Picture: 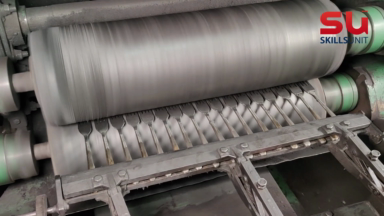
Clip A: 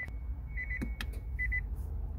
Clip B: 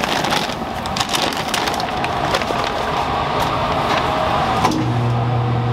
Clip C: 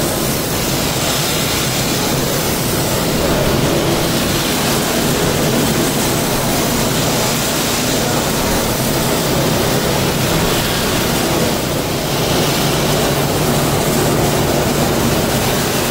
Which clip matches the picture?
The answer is C